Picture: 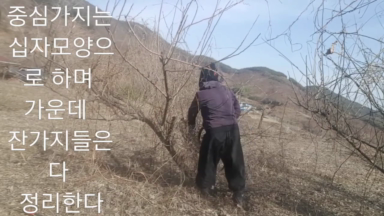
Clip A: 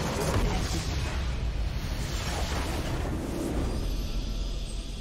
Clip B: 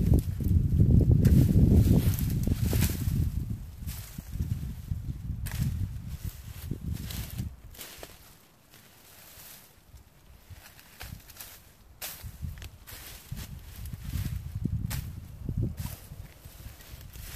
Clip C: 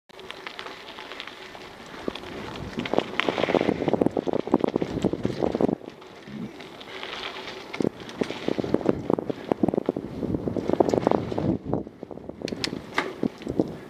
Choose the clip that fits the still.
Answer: B